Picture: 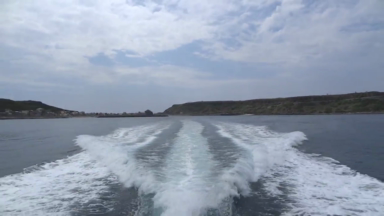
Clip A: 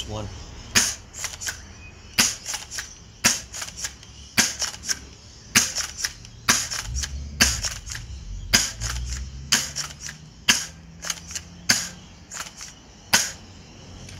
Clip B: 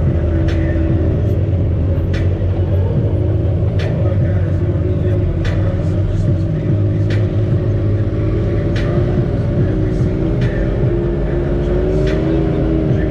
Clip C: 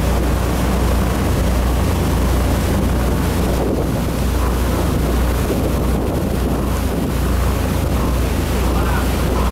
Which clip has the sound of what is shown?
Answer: C